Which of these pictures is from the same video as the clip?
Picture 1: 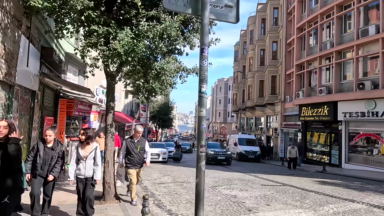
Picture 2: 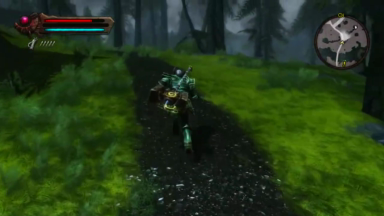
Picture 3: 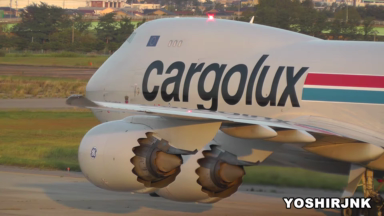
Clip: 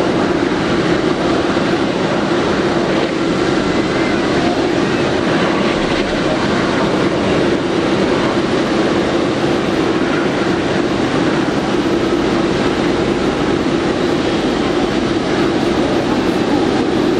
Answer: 3